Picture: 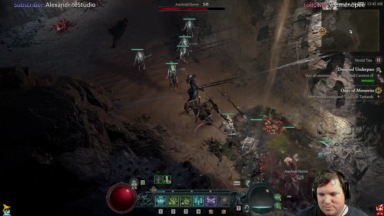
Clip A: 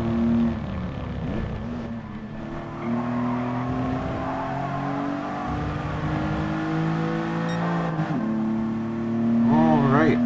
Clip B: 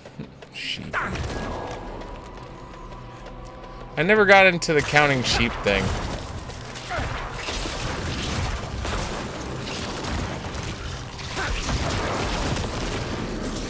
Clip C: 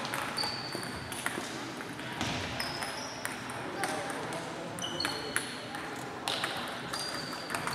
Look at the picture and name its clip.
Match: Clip B